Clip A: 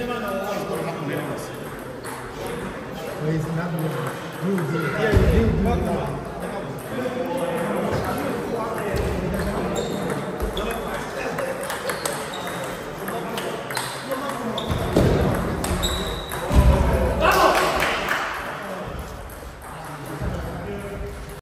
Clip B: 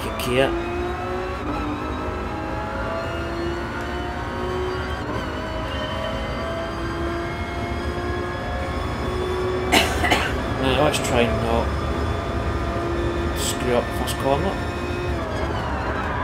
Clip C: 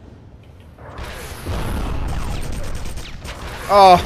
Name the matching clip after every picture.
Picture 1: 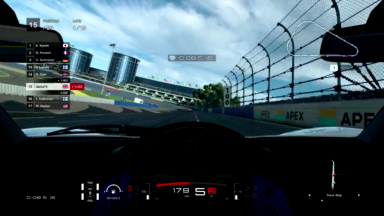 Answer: B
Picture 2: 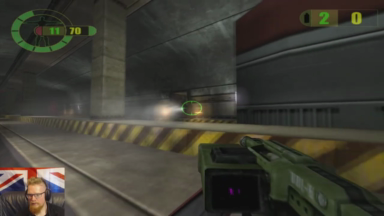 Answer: C